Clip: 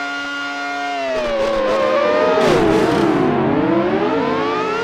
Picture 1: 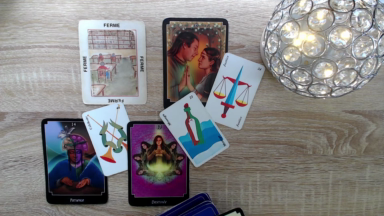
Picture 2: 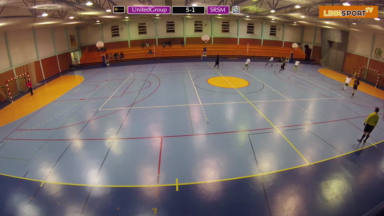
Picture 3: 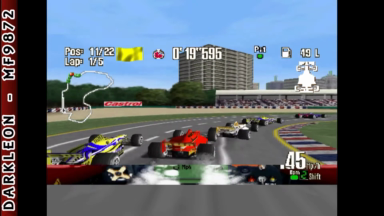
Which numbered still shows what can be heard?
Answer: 3